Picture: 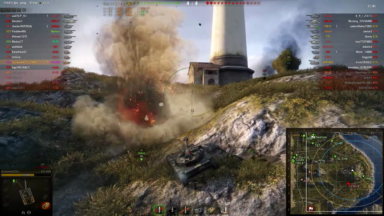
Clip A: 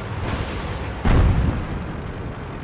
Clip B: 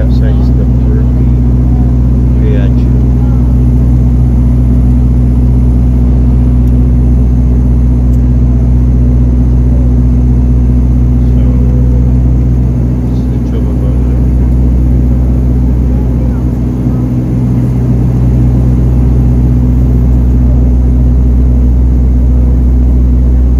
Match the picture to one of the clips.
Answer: A